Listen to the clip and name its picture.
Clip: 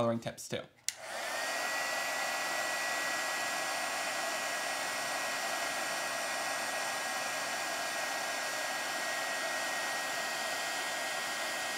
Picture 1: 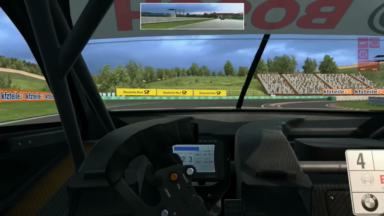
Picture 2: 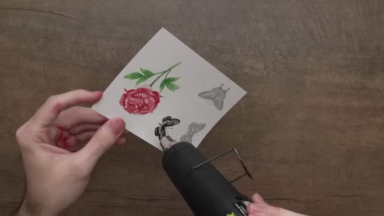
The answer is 2